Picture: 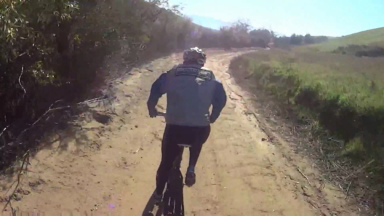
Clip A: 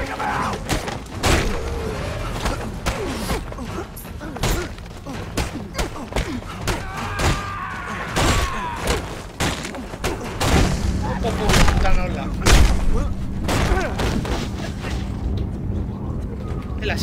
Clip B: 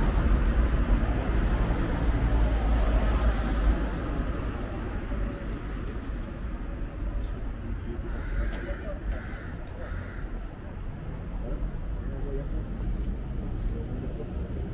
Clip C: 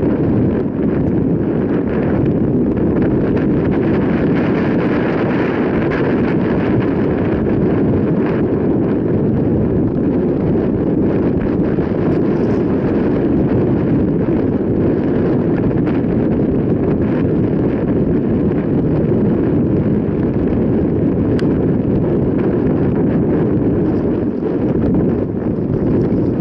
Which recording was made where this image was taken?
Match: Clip C